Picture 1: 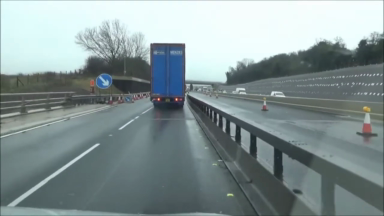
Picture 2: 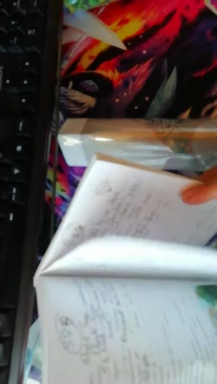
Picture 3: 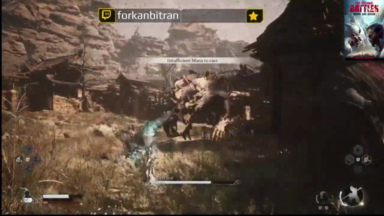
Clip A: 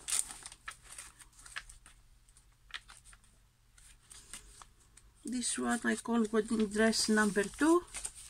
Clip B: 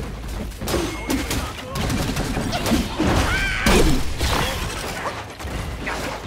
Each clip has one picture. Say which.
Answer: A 2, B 3